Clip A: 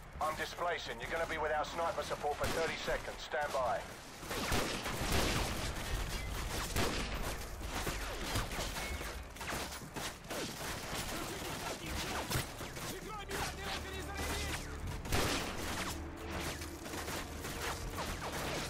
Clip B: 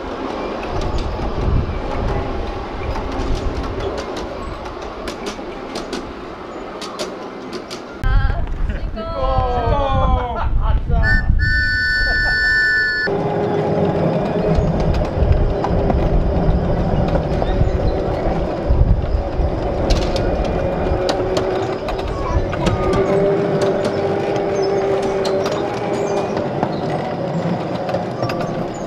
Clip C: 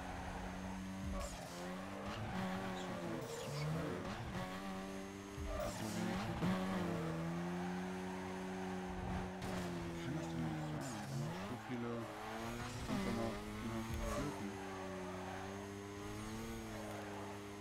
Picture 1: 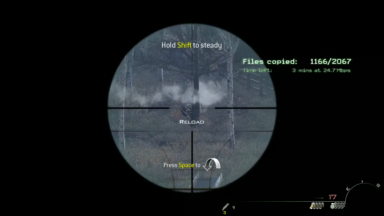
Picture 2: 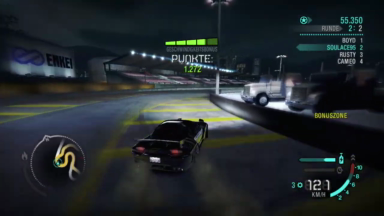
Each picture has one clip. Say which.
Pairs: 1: A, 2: C